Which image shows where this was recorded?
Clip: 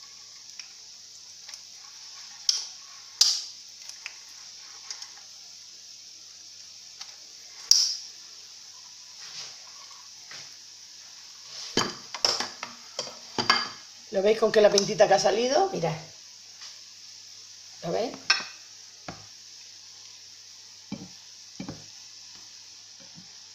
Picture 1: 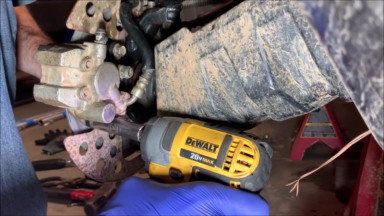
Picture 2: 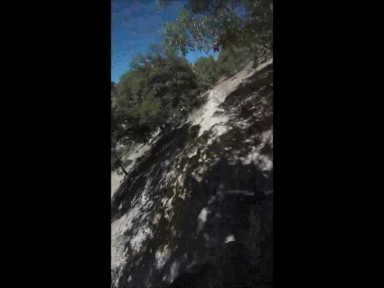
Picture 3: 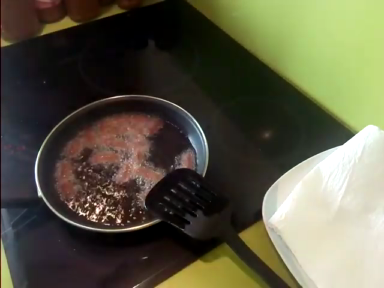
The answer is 3